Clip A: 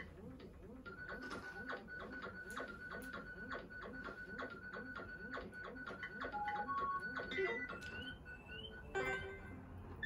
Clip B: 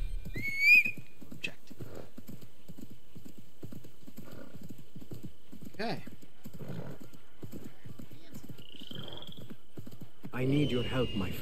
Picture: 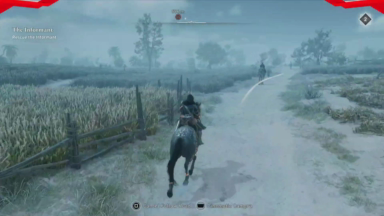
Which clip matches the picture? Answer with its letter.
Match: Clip B